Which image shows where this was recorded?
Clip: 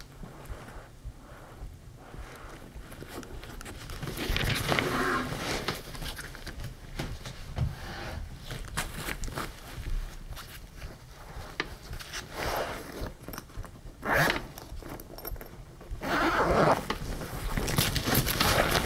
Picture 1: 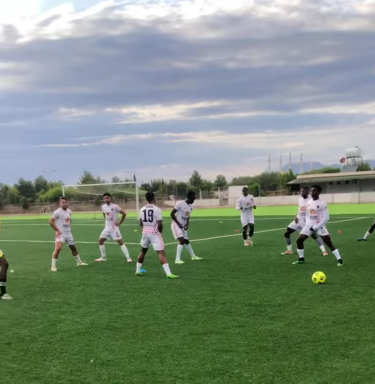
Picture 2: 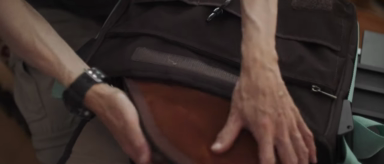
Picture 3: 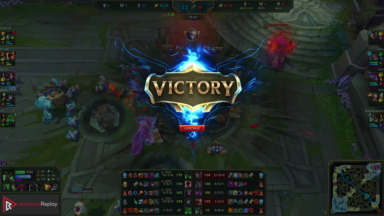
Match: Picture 2